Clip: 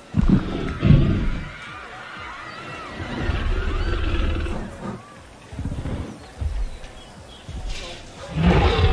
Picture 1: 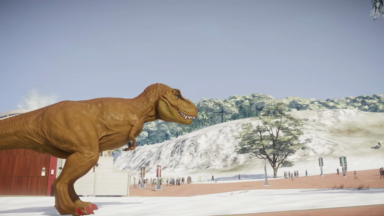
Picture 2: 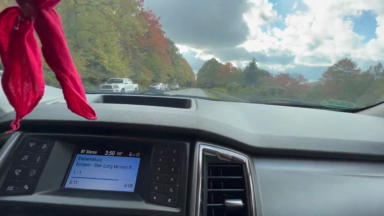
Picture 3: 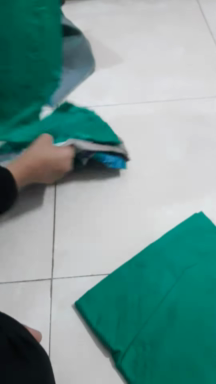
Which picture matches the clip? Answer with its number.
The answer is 1